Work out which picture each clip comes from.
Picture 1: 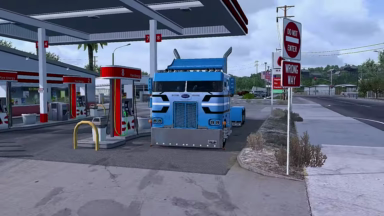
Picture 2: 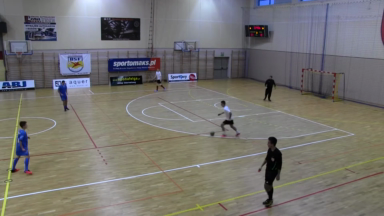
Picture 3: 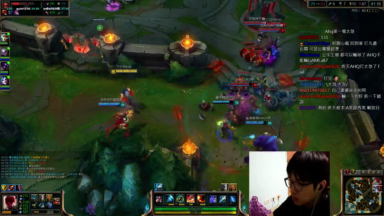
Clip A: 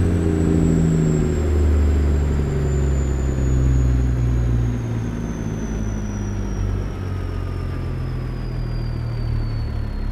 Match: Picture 1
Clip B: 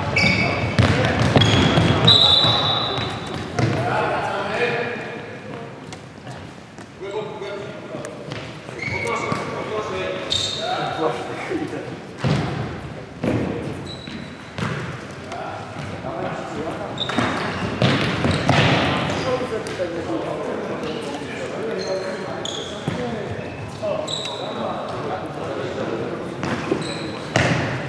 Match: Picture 2